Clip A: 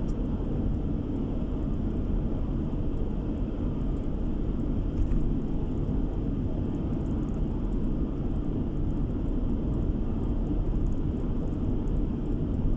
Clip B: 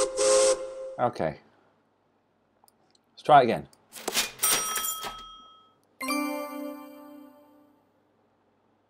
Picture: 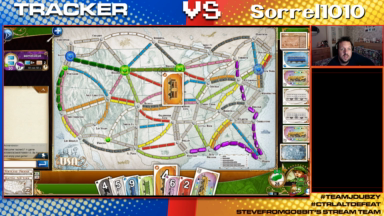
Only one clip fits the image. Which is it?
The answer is B